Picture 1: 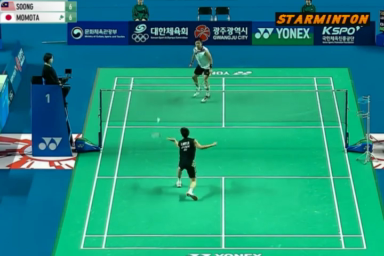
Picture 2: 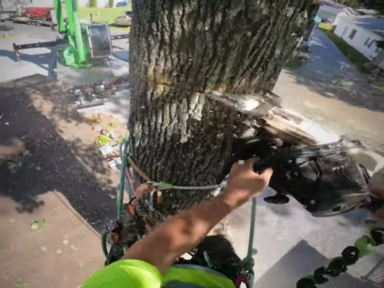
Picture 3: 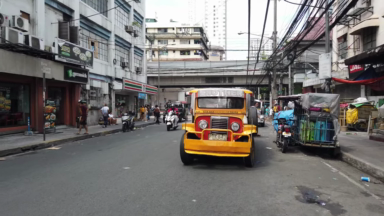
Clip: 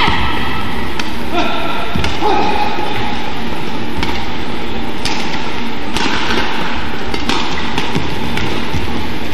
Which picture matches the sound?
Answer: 1